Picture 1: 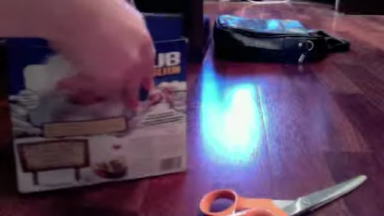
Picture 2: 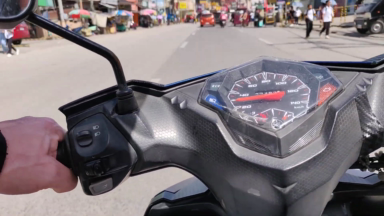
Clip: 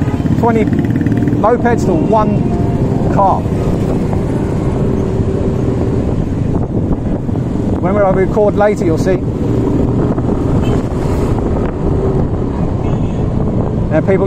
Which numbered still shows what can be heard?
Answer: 2